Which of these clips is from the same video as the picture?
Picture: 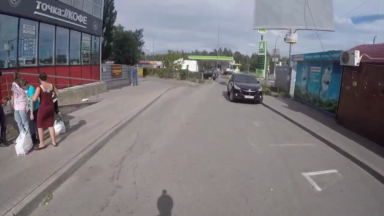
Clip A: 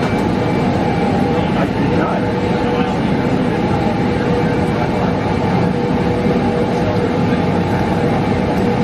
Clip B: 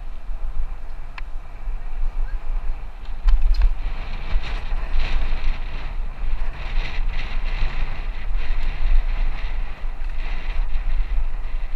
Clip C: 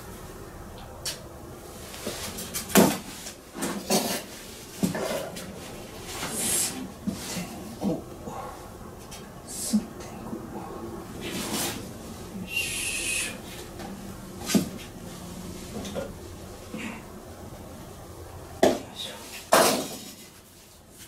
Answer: B